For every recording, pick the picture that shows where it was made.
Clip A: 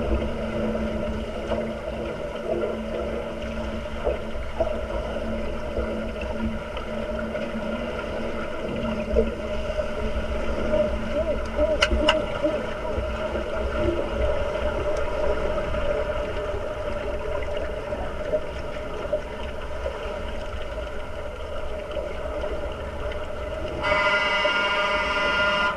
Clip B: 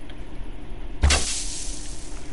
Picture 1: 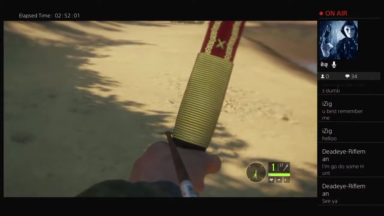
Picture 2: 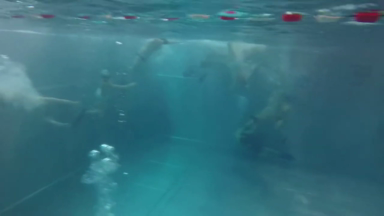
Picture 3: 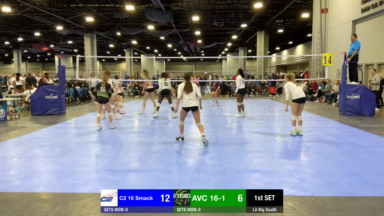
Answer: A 2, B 1